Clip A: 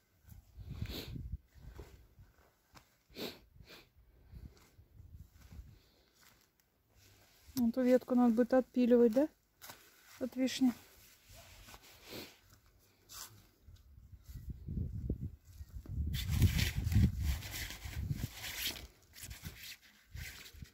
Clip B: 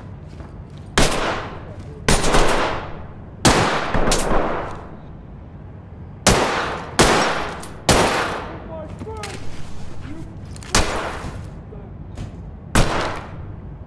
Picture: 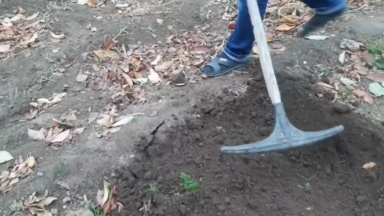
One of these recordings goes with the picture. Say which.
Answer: A